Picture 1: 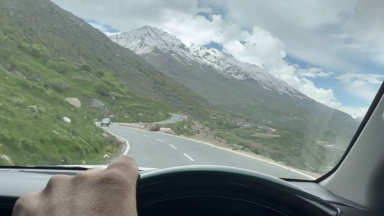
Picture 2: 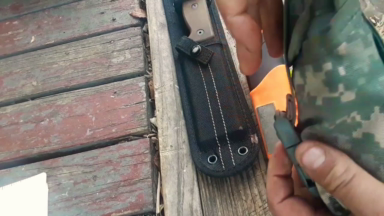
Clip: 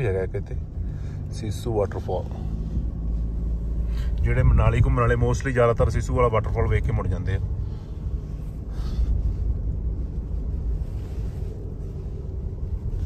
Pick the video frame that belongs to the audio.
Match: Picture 1